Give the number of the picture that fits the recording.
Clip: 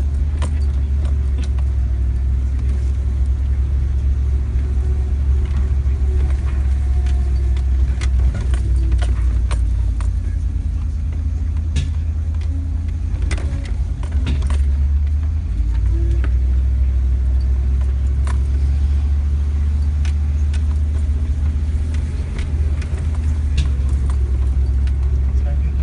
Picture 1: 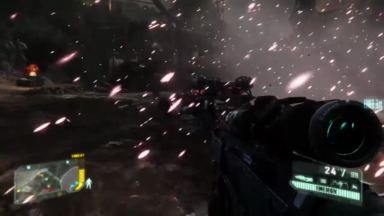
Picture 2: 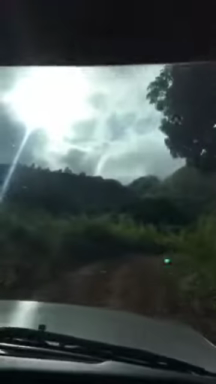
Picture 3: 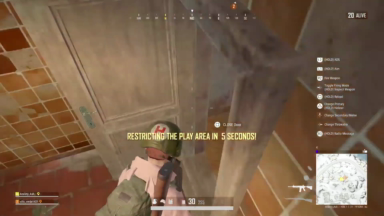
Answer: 2